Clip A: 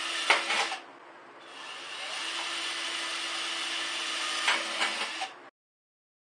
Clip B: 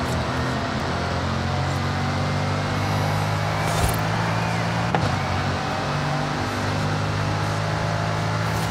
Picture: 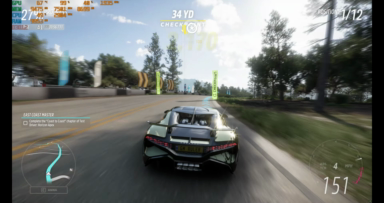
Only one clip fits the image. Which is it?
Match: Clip B